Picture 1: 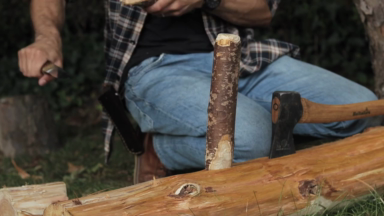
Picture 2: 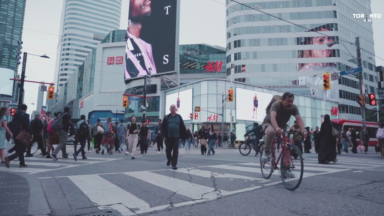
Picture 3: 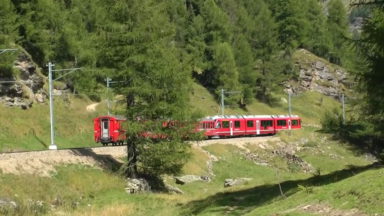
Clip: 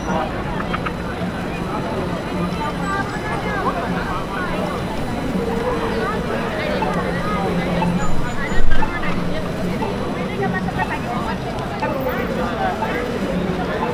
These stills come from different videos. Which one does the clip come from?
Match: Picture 2